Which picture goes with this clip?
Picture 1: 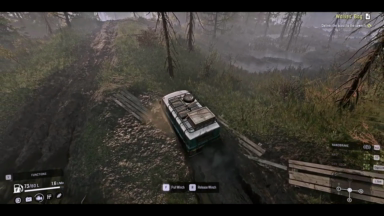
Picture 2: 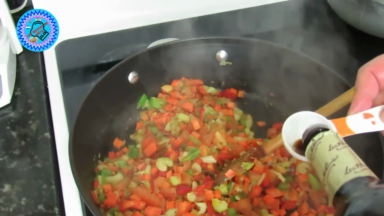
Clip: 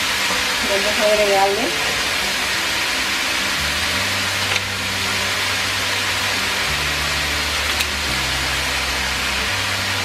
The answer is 2